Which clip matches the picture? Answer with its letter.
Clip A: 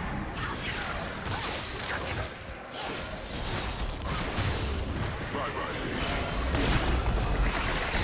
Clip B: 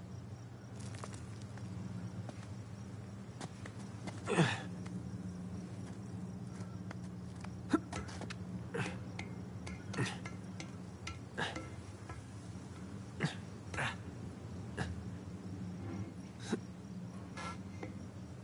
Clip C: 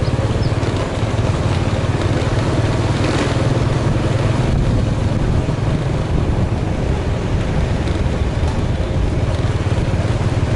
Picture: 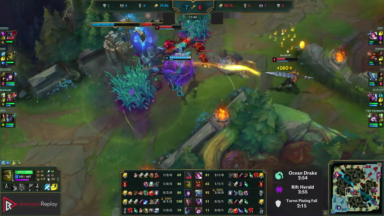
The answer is A